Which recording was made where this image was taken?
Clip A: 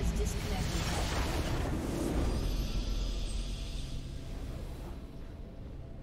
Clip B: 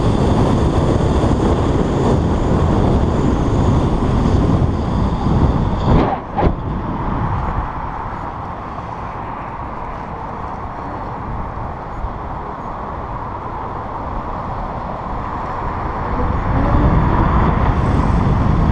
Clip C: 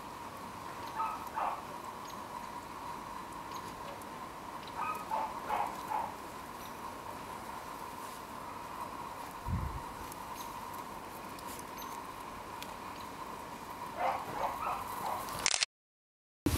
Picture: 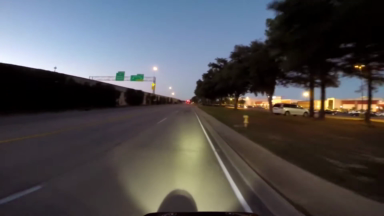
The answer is B